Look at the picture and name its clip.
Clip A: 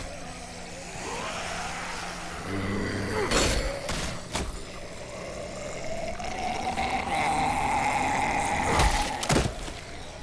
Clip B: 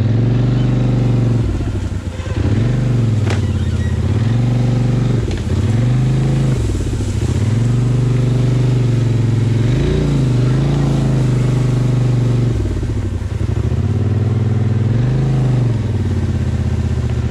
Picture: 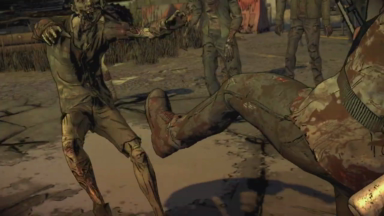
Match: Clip A